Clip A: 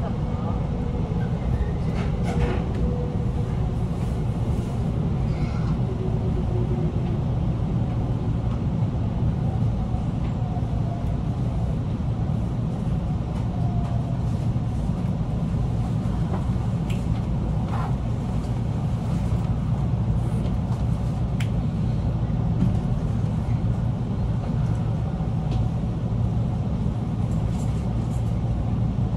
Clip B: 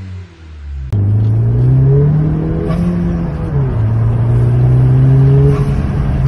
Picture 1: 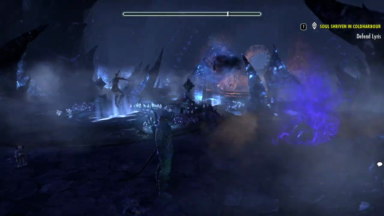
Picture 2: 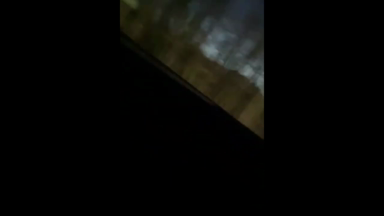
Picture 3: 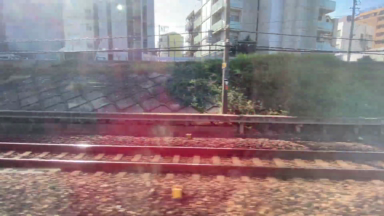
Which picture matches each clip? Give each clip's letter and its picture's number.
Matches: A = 3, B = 2